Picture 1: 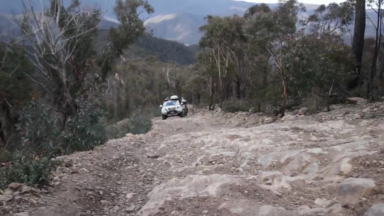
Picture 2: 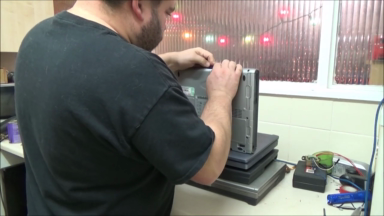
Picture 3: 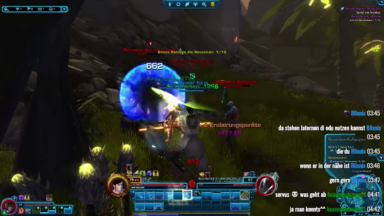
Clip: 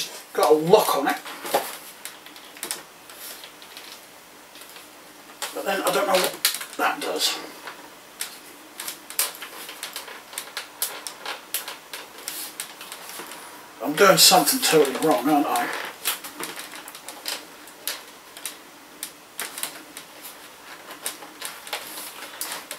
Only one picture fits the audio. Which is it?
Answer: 2